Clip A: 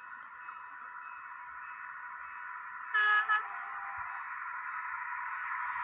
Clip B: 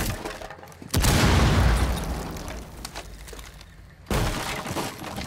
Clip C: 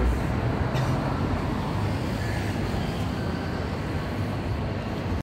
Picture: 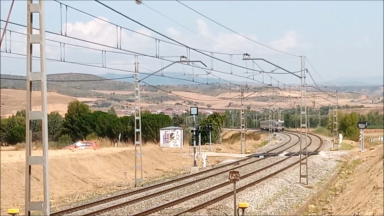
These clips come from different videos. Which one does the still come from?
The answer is A